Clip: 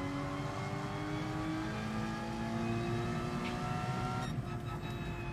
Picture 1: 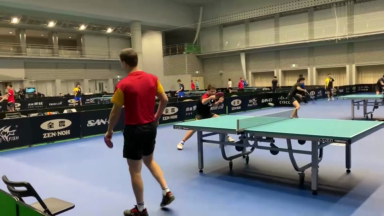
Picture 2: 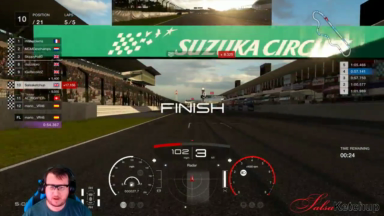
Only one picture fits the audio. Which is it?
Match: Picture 2